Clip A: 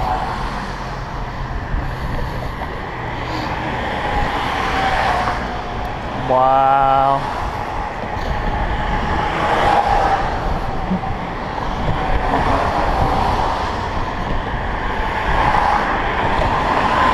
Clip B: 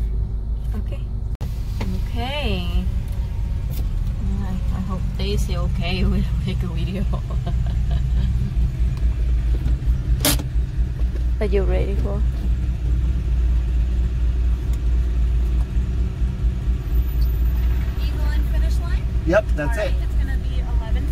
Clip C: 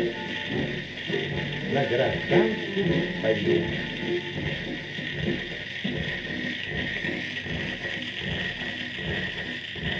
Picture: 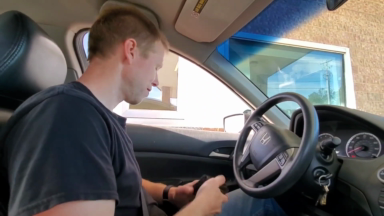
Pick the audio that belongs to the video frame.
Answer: B